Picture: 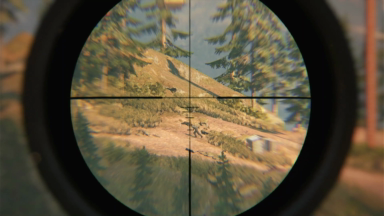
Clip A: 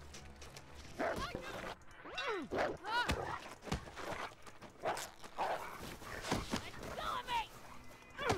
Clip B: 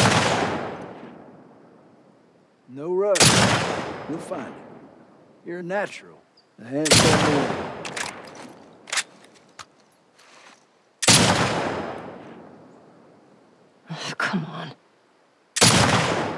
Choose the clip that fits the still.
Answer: B